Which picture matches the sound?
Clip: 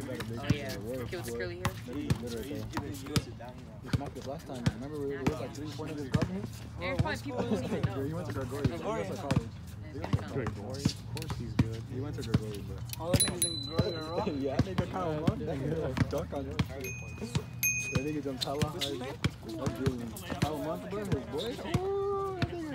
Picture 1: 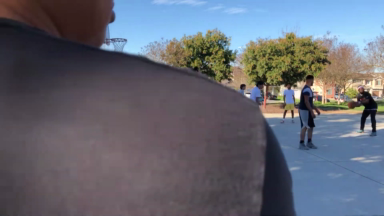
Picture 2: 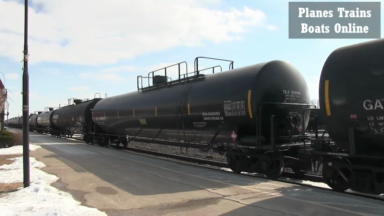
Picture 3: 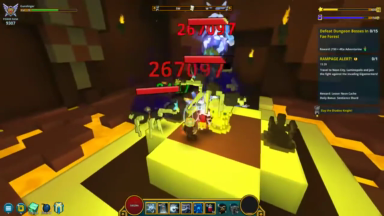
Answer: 1